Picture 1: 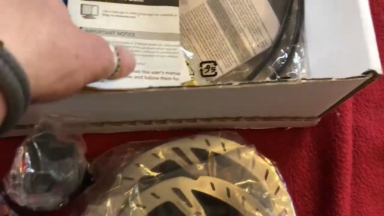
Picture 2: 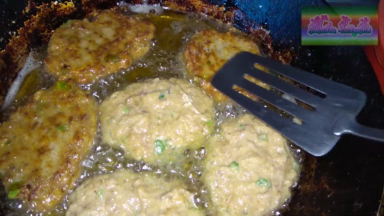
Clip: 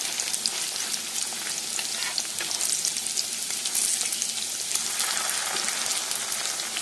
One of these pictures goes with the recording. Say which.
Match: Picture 2